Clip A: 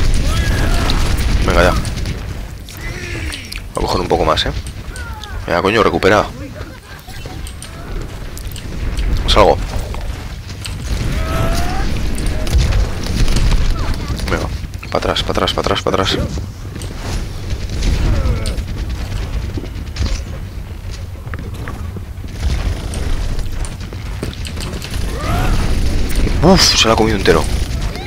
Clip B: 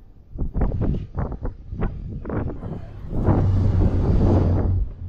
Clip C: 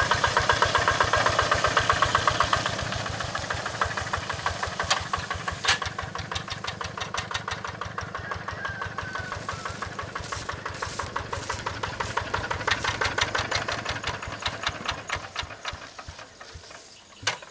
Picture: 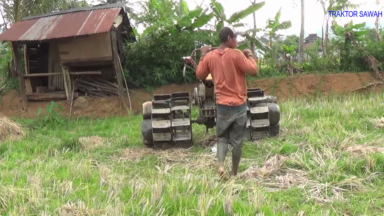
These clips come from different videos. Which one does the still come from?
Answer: C